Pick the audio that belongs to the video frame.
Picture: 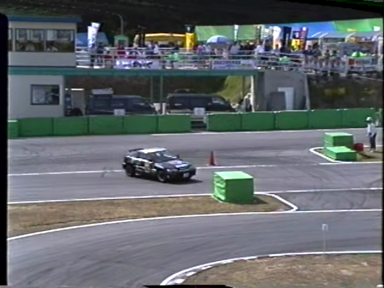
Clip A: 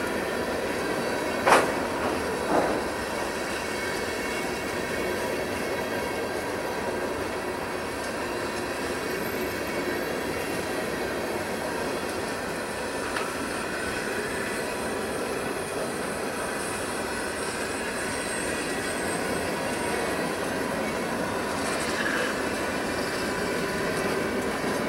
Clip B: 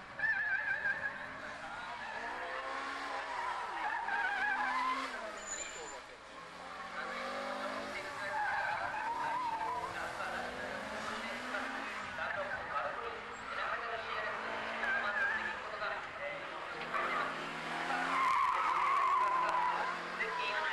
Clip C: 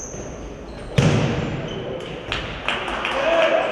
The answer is B